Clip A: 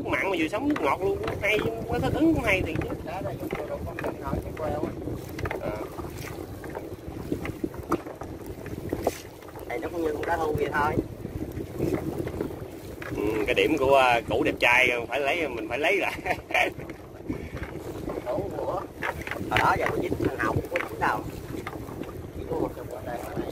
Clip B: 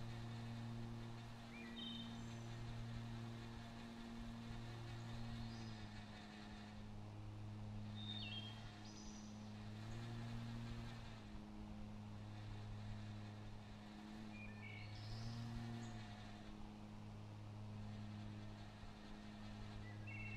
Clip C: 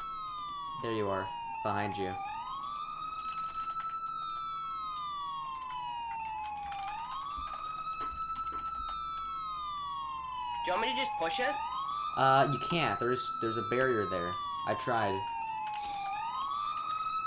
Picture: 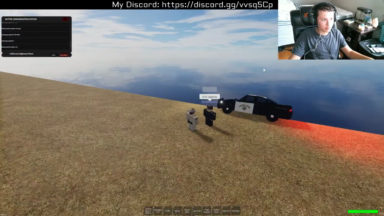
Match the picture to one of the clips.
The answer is C